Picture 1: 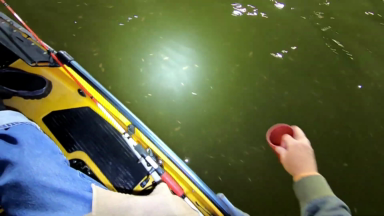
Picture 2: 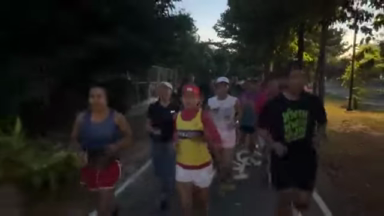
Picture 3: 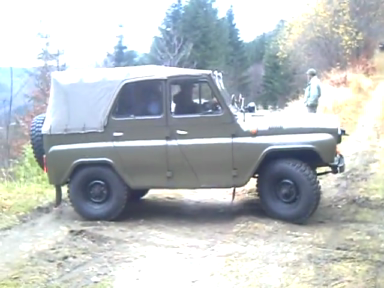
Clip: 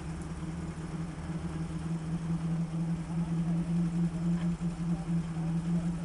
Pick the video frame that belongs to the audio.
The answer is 3